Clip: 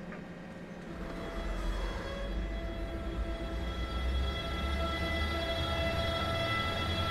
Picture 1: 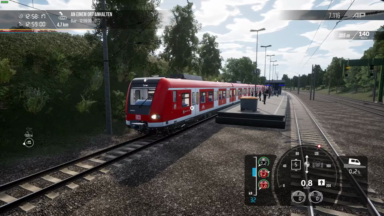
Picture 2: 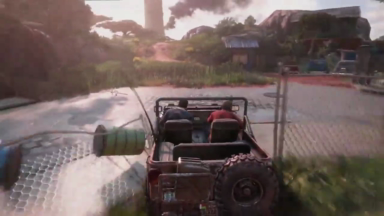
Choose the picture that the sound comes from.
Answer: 1